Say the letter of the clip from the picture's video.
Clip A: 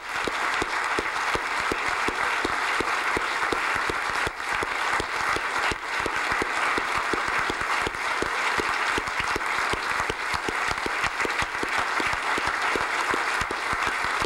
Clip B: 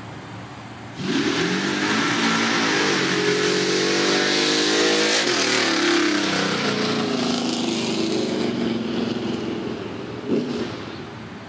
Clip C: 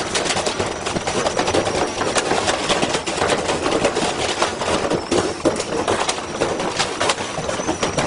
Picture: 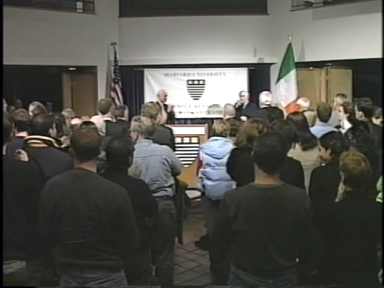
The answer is A